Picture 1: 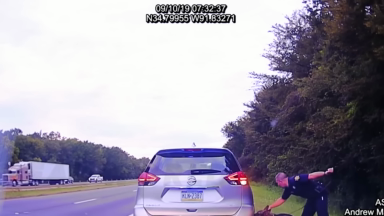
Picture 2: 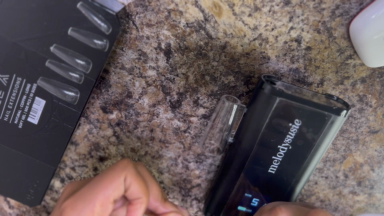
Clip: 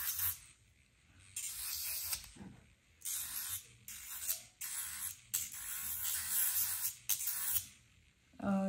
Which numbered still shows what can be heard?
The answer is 2